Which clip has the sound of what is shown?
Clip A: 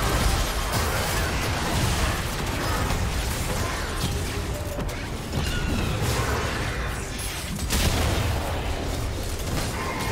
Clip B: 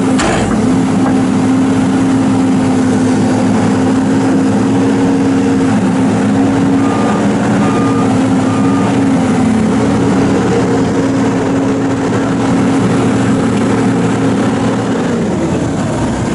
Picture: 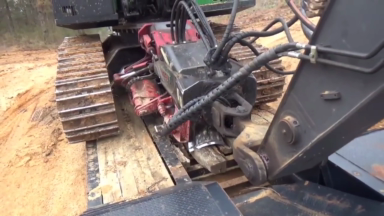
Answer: B